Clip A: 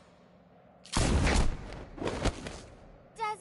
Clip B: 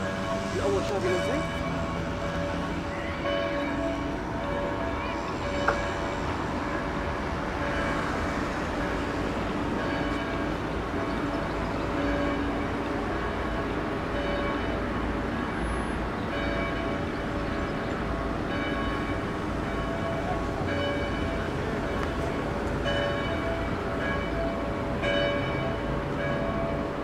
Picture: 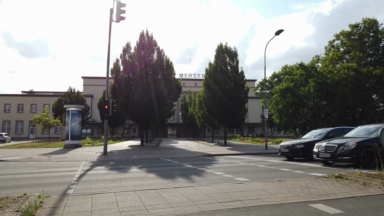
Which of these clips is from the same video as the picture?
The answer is B